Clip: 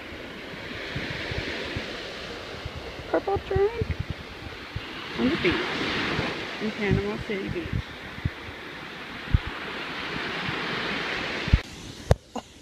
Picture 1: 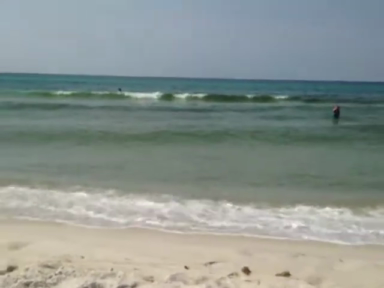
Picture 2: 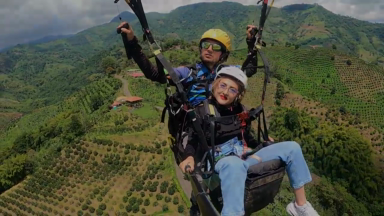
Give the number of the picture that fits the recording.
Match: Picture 1